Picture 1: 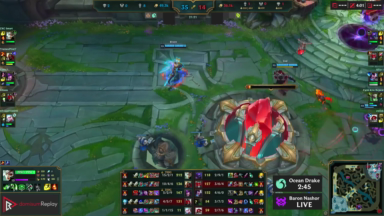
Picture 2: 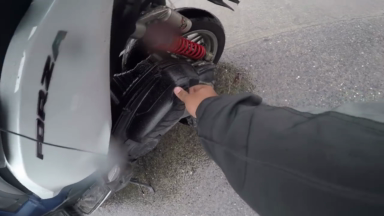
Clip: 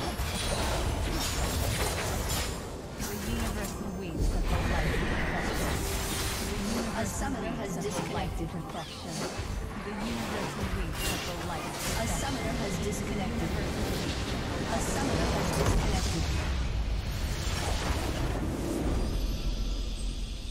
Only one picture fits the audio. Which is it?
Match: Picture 1